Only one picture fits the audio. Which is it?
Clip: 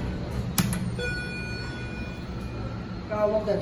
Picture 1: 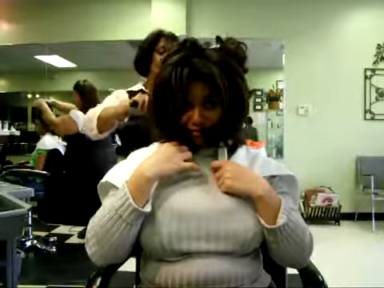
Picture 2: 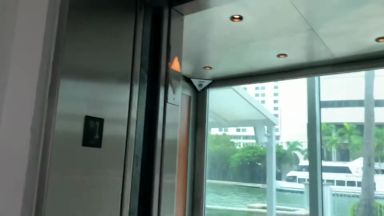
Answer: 2